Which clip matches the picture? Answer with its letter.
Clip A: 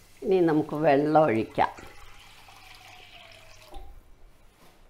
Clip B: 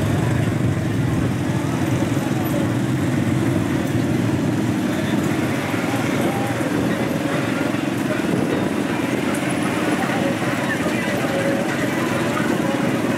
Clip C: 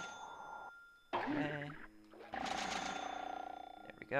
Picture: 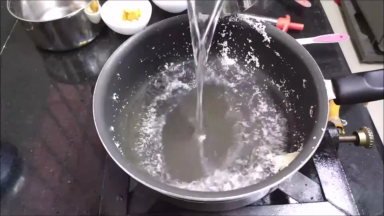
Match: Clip A